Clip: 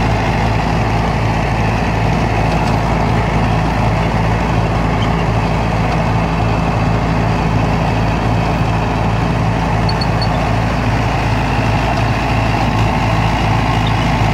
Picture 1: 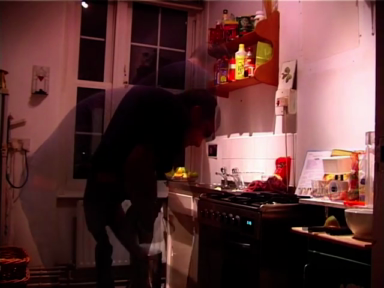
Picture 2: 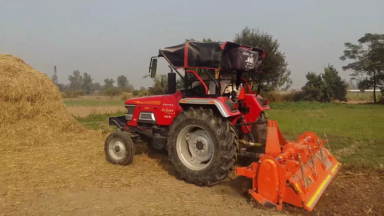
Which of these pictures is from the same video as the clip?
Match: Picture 2